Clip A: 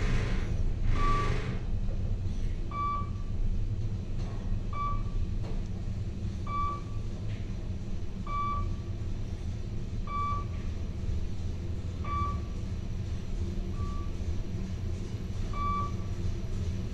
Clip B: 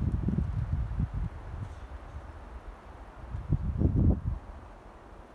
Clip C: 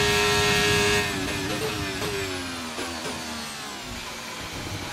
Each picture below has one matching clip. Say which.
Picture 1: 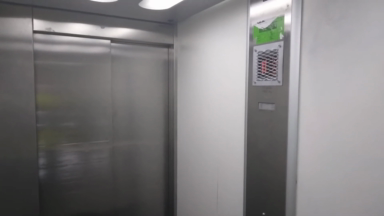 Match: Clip A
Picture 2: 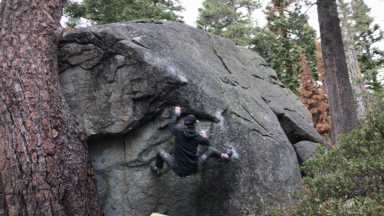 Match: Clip B